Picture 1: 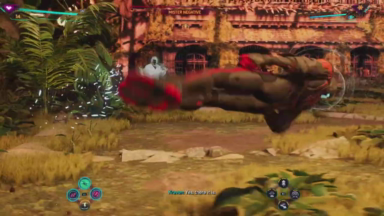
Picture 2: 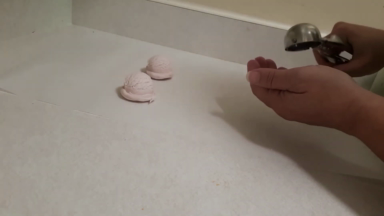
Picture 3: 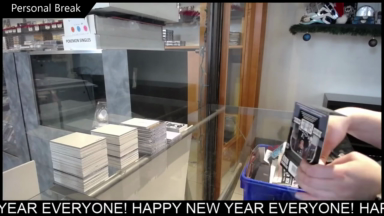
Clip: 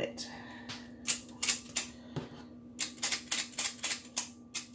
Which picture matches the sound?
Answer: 2